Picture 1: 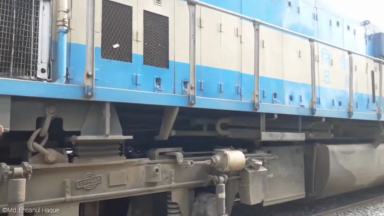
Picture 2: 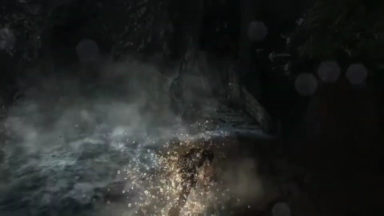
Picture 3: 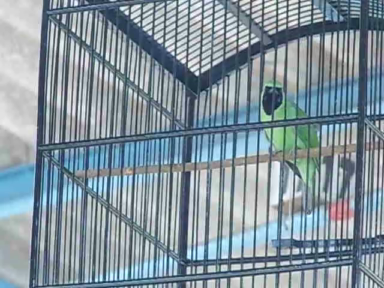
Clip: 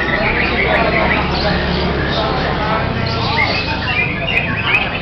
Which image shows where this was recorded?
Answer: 3